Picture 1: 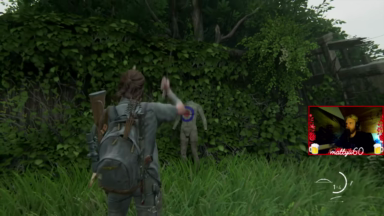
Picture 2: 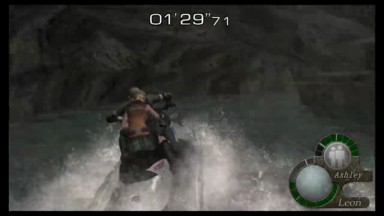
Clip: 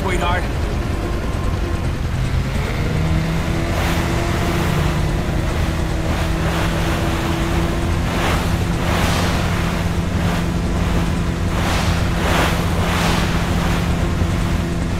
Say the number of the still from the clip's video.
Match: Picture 2